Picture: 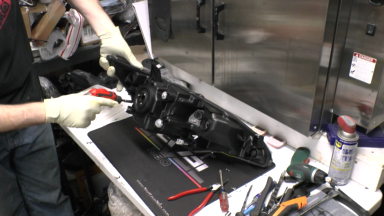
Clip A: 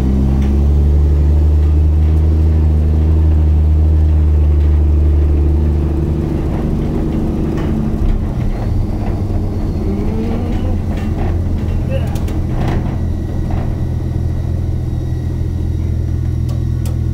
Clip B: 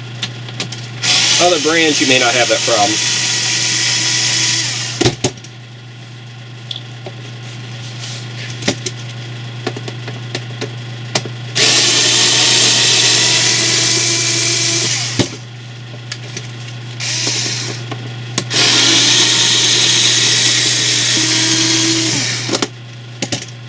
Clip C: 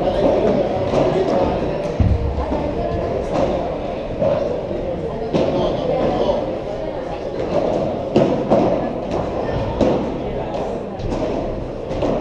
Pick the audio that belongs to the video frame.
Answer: B